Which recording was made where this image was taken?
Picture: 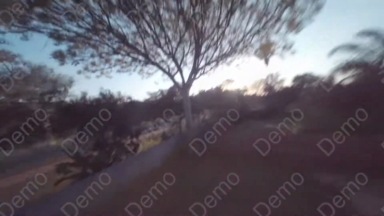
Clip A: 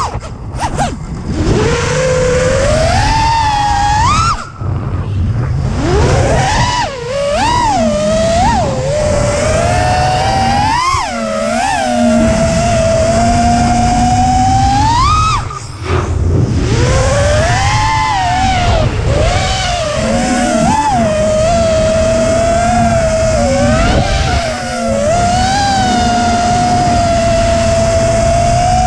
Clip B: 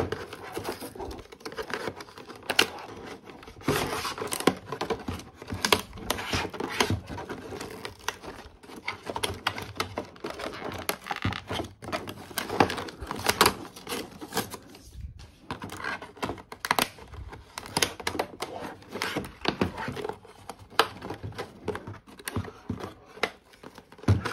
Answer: A